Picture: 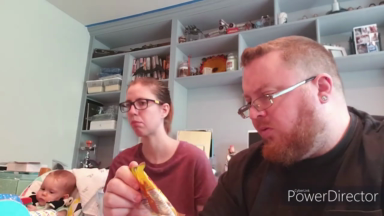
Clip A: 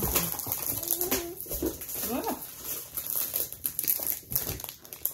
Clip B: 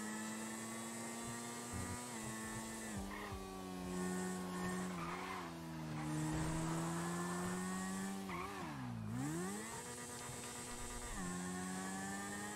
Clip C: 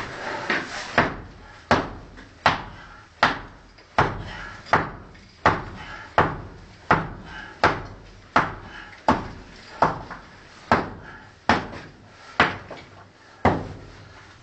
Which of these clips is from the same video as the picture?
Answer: A